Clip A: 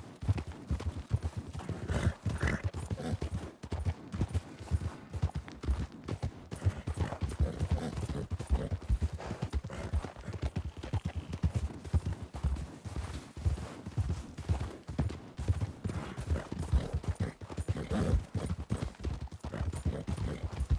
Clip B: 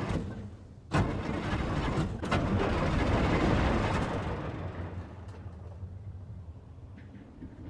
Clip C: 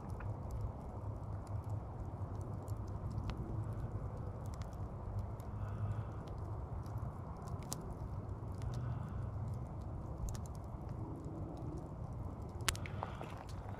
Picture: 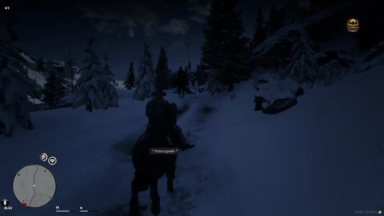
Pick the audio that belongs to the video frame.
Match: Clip A